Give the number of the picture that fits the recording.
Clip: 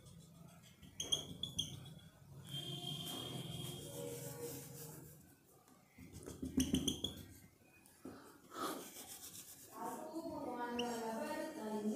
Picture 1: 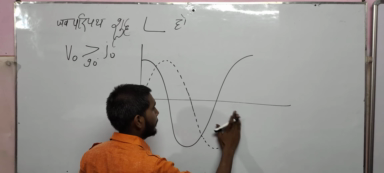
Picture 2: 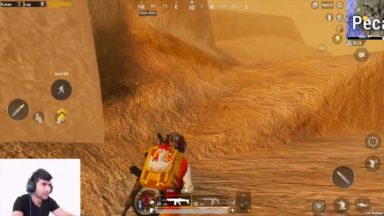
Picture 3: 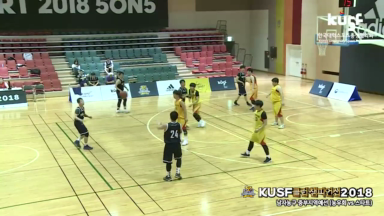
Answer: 1